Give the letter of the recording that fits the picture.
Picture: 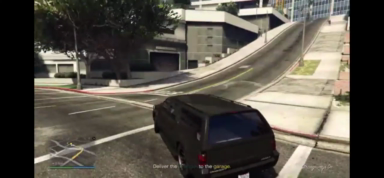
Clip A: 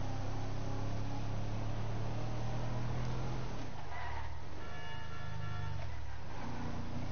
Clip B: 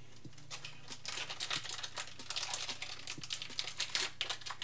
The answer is A